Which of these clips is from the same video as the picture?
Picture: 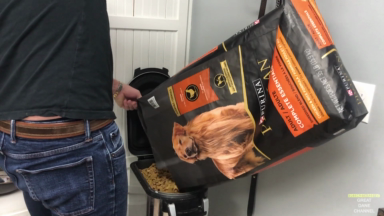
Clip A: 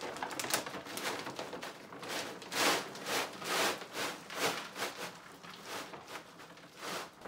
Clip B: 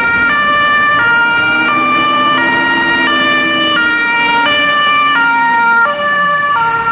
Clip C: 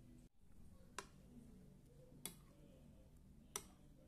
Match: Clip A